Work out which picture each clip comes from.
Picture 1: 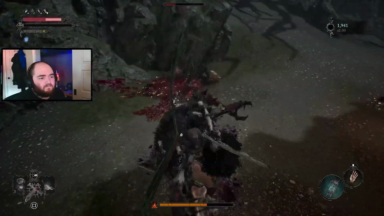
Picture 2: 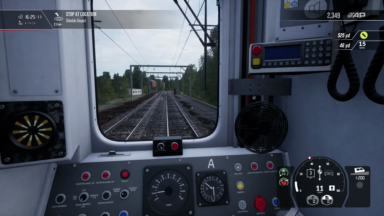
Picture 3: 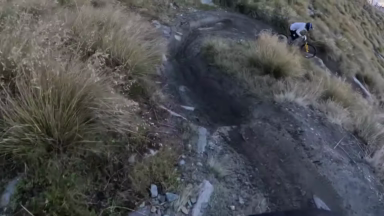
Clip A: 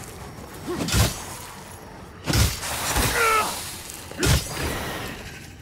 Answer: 1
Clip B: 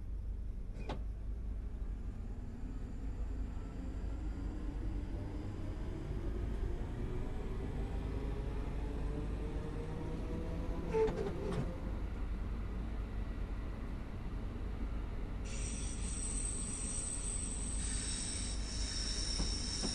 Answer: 2